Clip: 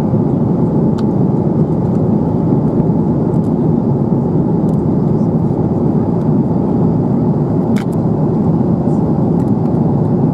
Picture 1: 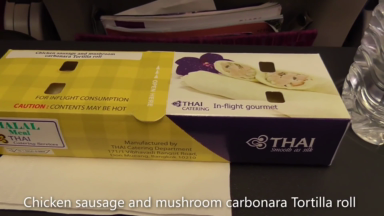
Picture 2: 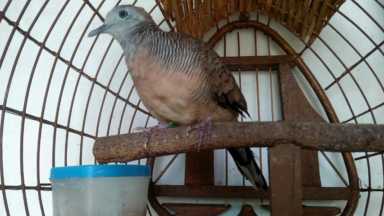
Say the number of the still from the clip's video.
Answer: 1